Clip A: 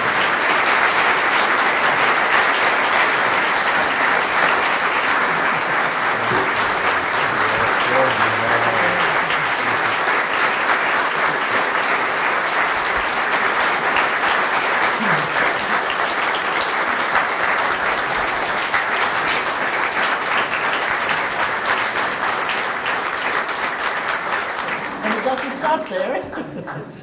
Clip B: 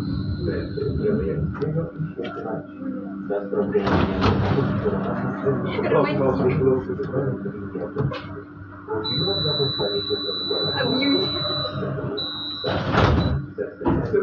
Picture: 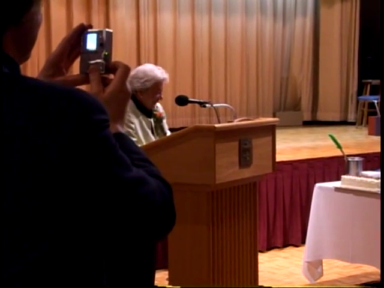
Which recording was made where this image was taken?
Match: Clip A